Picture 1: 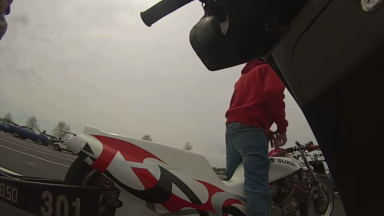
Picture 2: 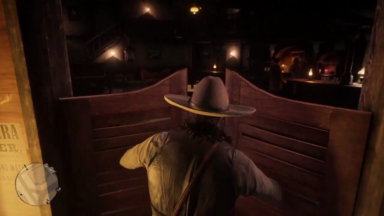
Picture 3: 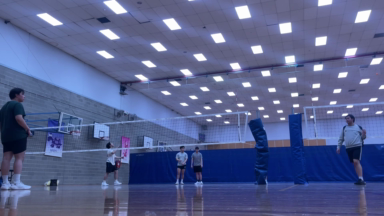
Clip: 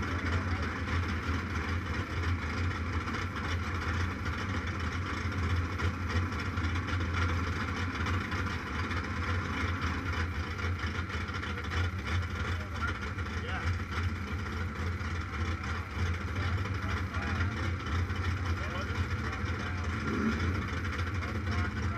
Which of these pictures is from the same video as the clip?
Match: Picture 1